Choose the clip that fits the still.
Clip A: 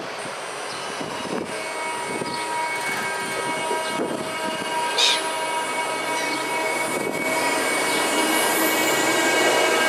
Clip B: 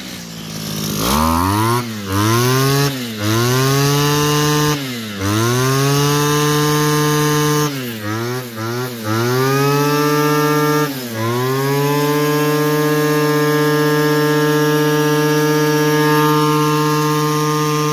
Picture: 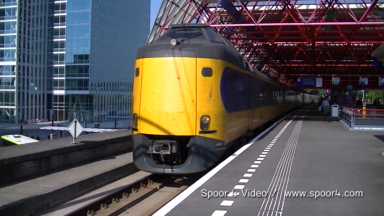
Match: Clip A